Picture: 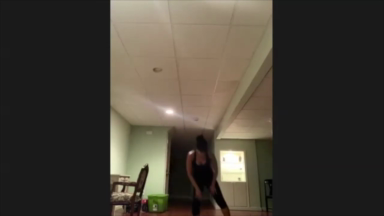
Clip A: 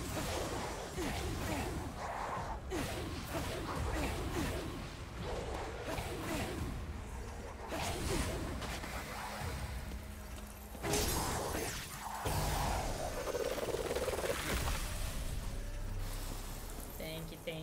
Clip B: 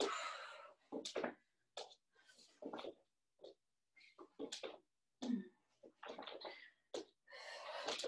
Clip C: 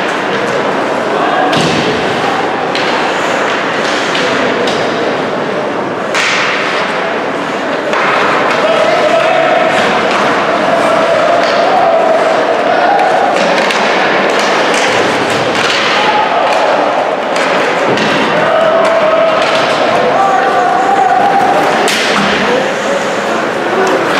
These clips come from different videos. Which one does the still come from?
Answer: B